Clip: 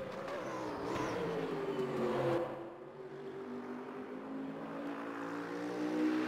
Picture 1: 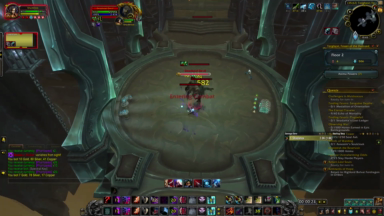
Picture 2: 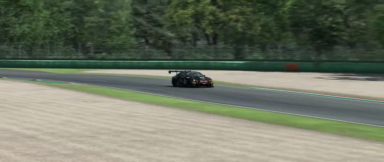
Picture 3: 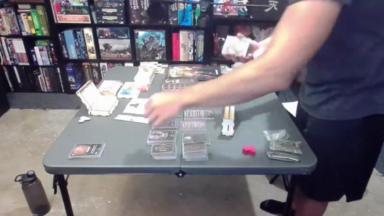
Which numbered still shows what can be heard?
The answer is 2